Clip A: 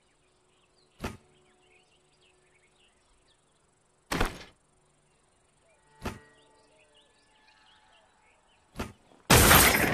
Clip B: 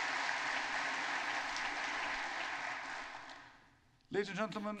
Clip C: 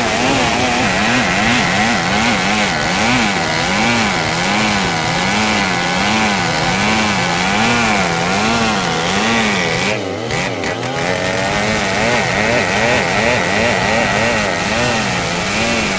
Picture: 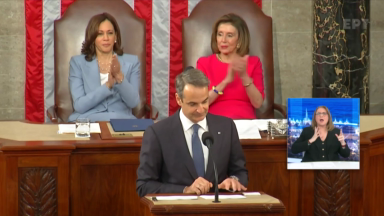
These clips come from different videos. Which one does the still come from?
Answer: B